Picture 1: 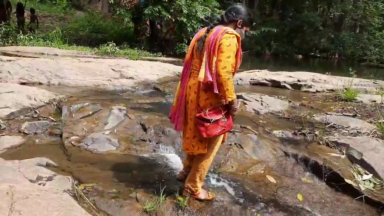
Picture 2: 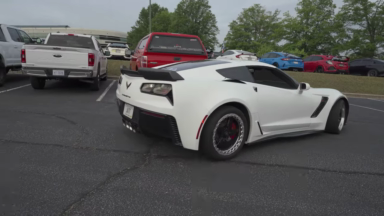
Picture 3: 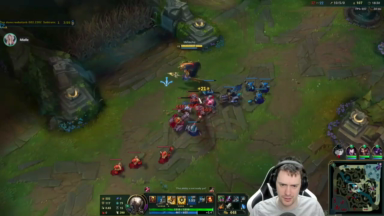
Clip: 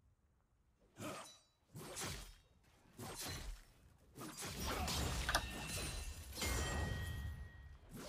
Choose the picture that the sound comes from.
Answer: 3